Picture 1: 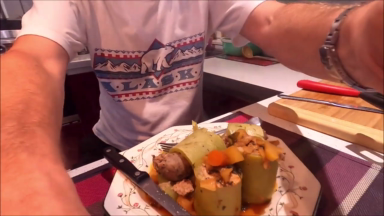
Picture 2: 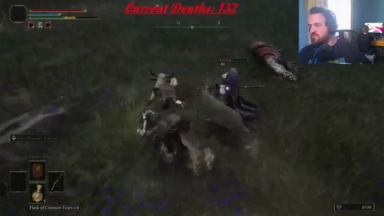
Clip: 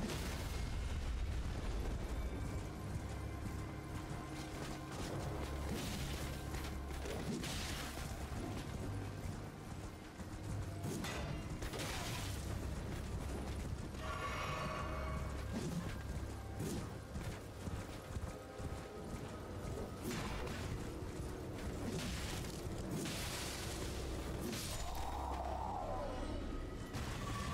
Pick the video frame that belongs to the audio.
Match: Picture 2